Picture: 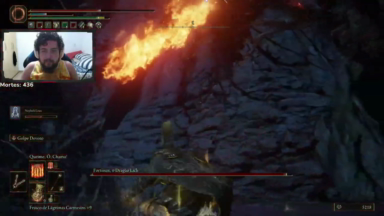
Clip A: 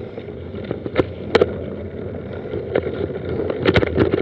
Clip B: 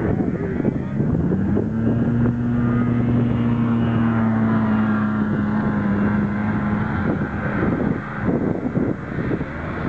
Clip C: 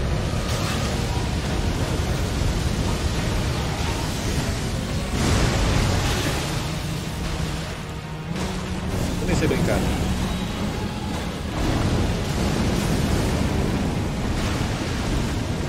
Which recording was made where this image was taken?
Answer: C